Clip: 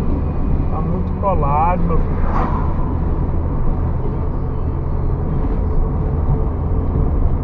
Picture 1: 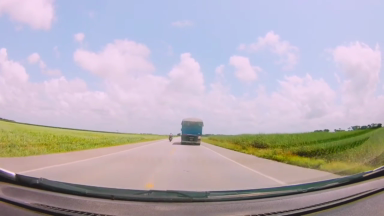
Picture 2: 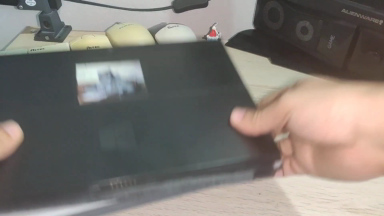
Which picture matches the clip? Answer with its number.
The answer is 1